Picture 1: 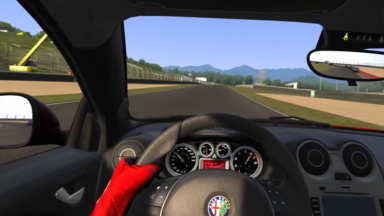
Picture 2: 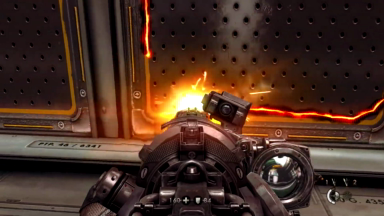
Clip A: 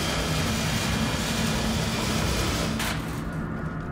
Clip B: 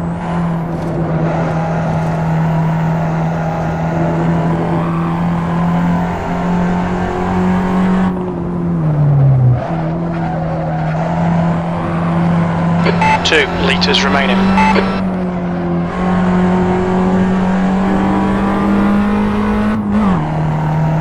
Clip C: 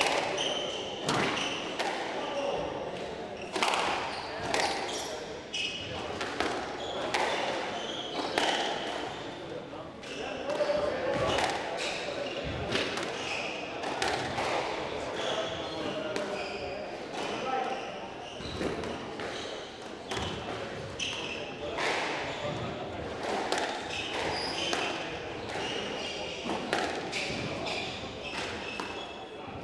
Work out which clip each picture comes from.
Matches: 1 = B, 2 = A